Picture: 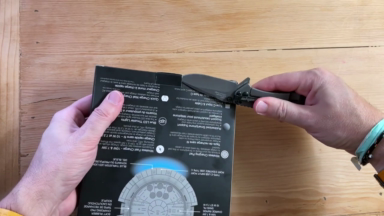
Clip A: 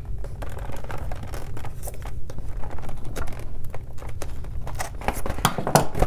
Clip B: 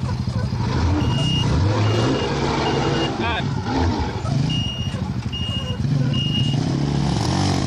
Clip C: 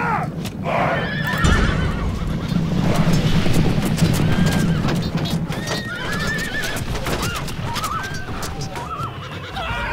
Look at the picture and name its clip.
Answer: A